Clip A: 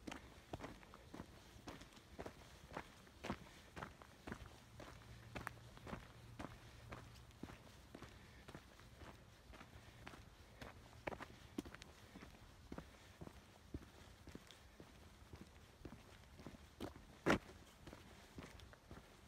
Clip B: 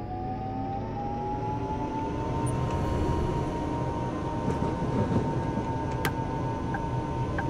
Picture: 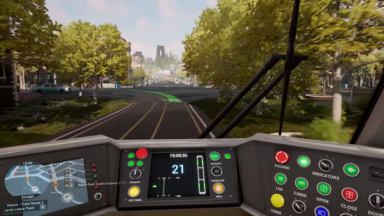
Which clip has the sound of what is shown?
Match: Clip B